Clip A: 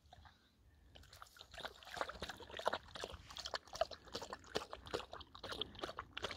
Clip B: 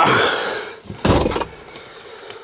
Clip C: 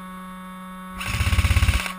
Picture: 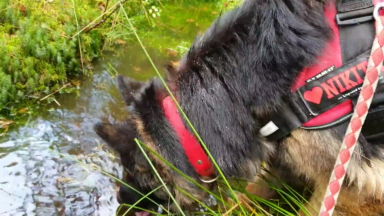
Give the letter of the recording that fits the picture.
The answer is A